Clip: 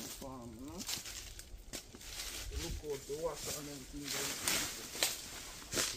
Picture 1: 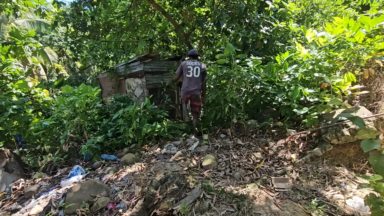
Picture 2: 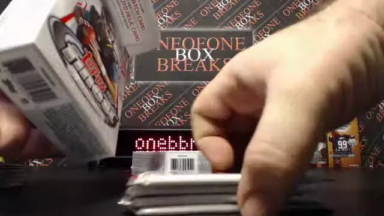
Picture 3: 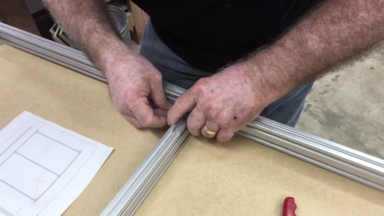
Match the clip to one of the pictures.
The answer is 1